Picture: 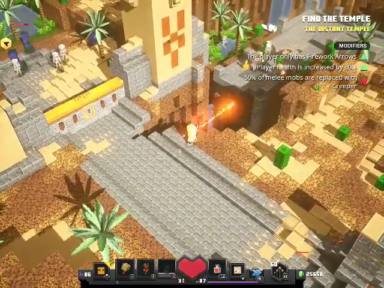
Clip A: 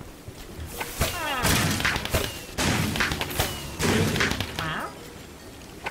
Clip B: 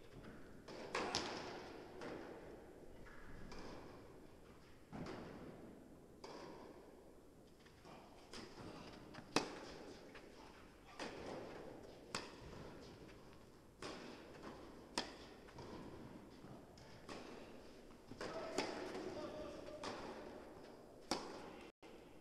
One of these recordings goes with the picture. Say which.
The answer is A